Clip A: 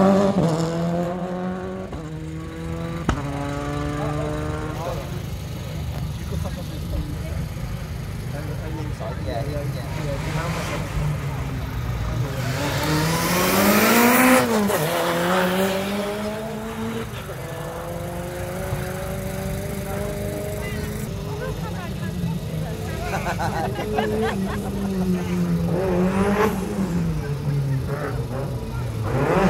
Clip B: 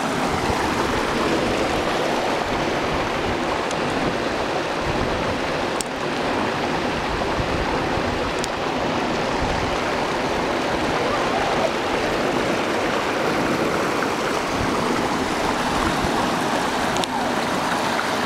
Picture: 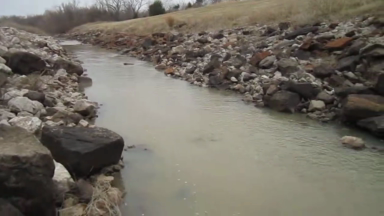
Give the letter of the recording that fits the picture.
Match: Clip B